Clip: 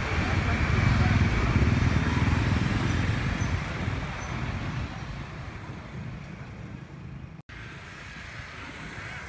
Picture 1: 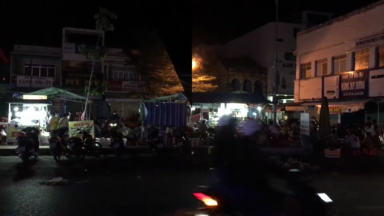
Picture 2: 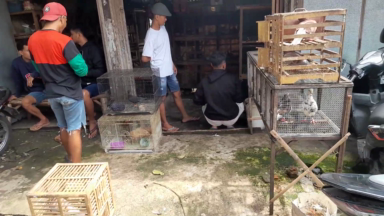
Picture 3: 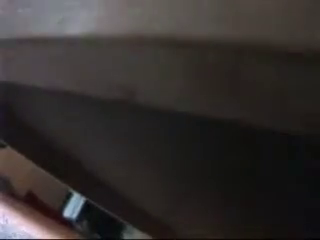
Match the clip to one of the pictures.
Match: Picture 1